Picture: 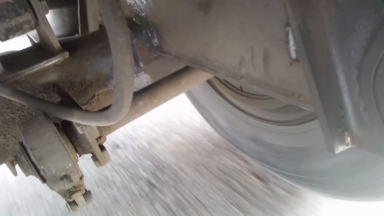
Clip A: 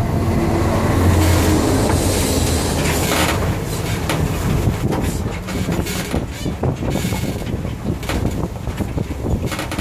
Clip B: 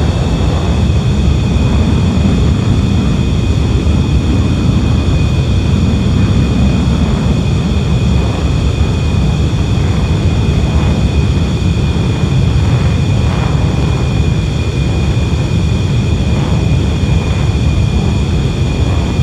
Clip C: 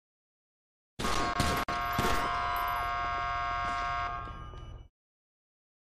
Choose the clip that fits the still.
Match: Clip A